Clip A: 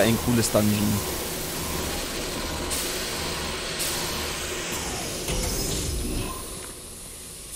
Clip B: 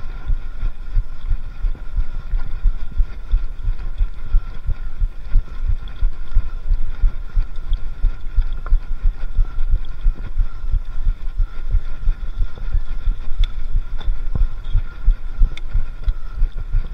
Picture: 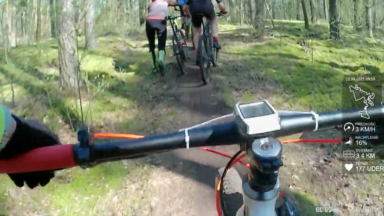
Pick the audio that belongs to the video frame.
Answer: B